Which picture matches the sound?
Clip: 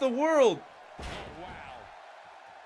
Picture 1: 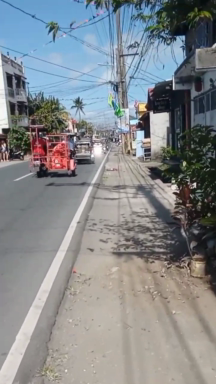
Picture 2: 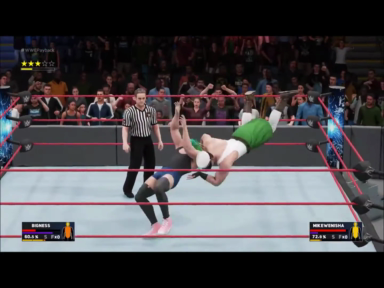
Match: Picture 2